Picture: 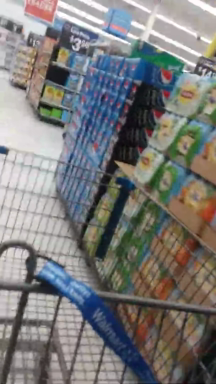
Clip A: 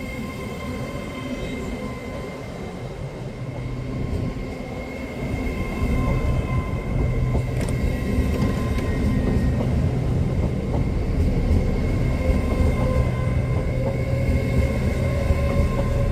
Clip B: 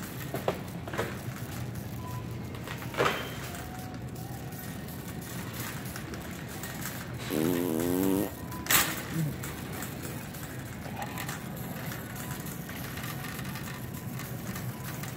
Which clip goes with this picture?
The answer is B